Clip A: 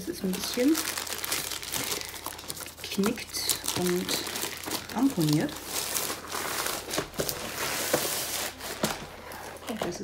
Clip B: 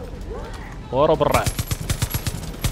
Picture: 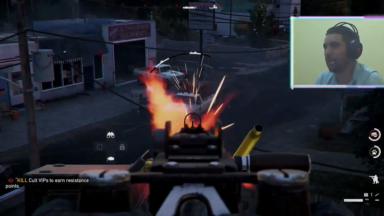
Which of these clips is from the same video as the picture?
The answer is B